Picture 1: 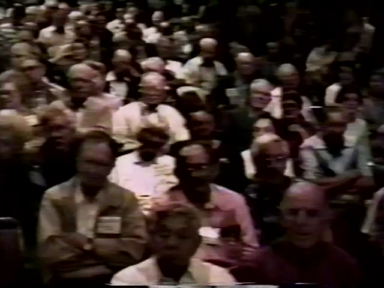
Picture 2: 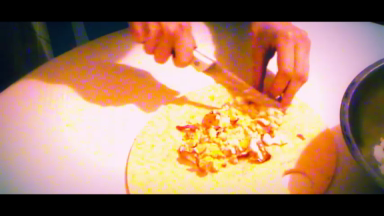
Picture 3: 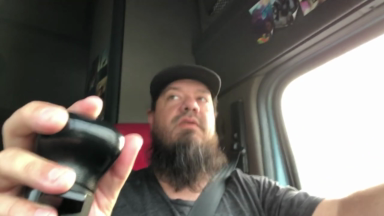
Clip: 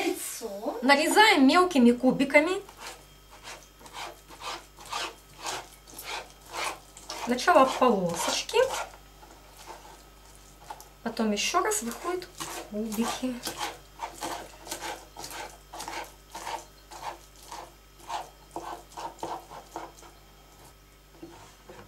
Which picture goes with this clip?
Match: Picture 2